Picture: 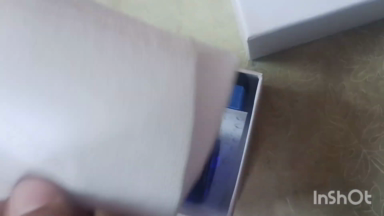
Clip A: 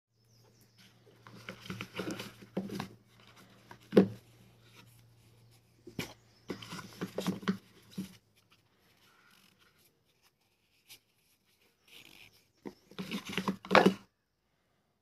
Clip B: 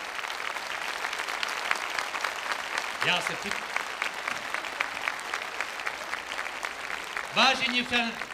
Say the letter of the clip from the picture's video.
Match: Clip A